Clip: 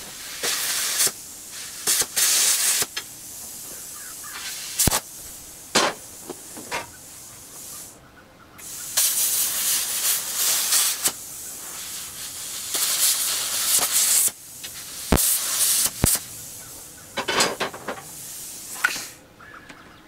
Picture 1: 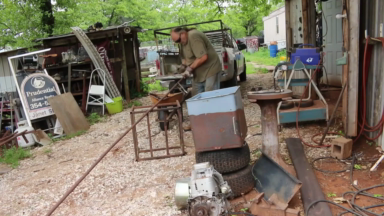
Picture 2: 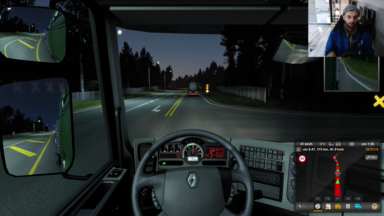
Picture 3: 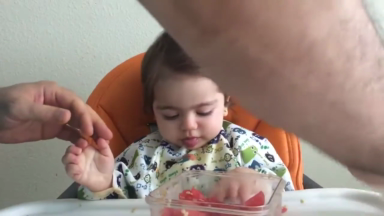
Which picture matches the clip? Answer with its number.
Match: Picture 1